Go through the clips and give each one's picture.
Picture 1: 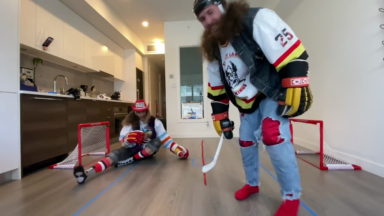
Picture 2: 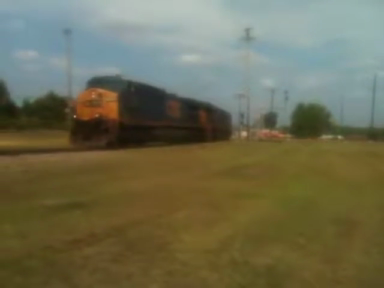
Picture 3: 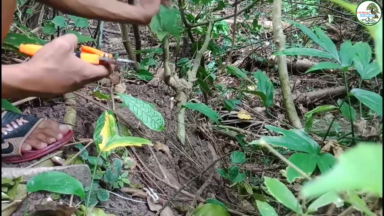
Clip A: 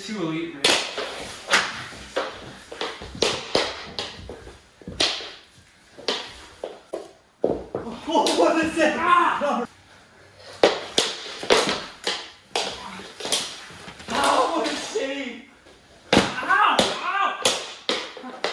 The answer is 1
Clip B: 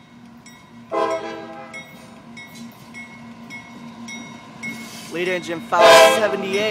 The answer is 2